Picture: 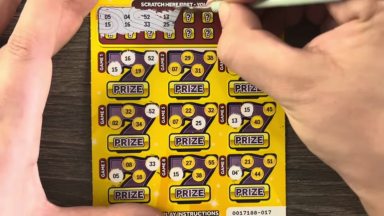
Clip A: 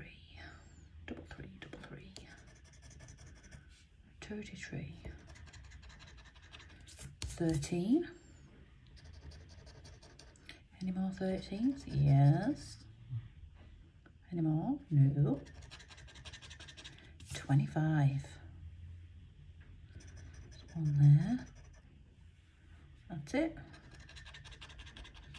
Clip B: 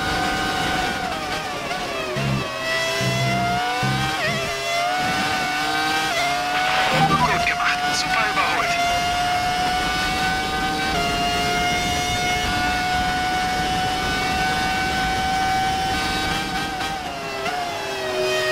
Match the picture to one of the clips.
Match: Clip A